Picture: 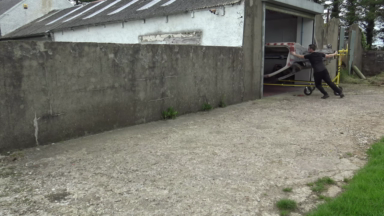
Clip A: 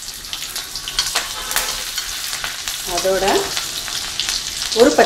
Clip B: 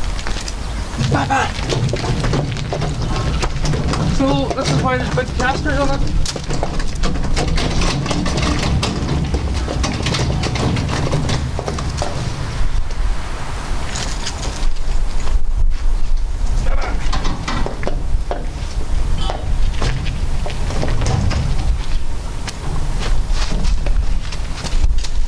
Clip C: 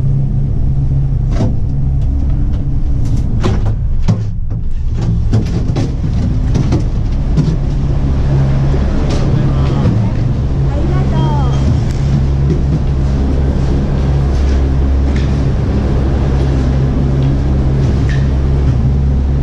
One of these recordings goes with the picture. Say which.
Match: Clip B